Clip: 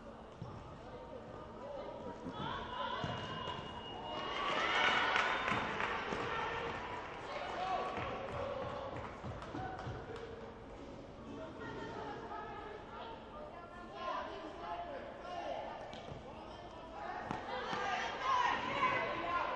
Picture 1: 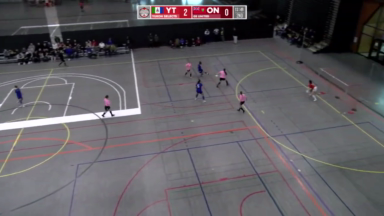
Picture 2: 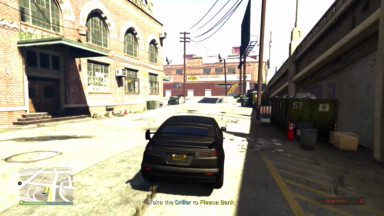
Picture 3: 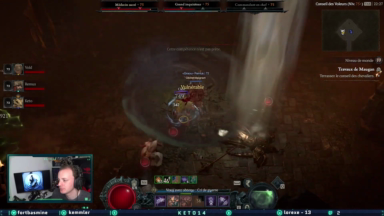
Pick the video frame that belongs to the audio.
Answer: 1